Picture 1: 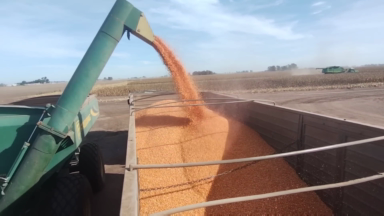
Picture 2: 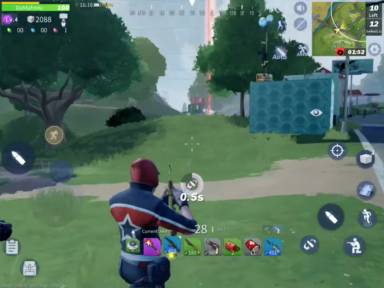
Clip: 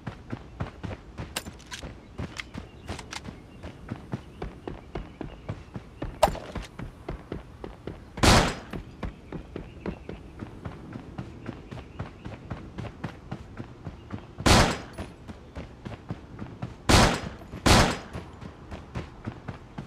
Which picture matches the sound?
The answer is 2